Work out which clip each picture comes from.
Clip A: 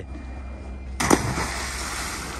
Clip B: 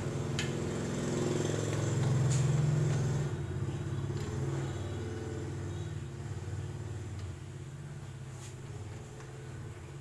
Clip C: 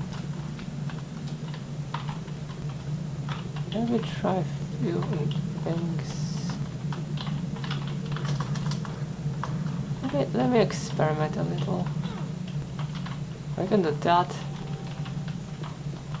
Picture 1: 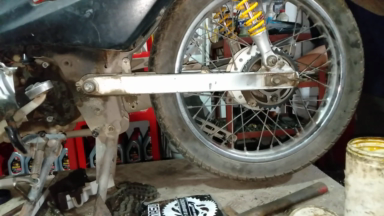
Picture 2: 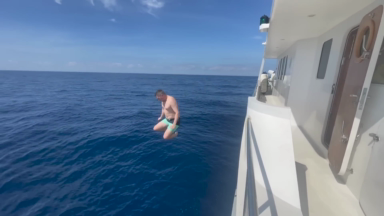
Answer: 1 B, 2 A